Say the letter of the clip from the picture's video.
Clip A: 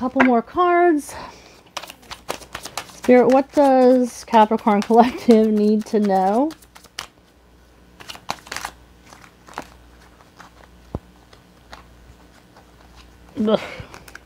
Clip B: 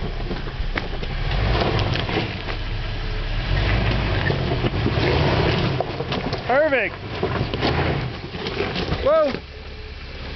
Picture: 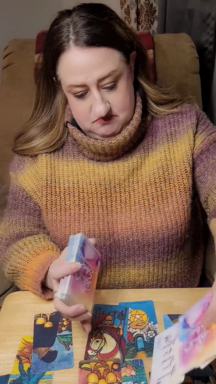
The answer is A